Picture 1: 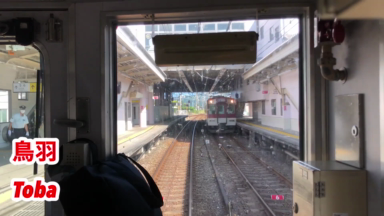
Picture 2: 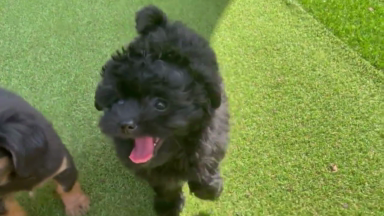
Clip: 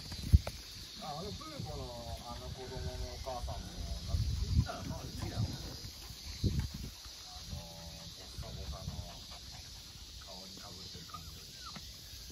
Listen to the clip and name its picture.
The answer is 2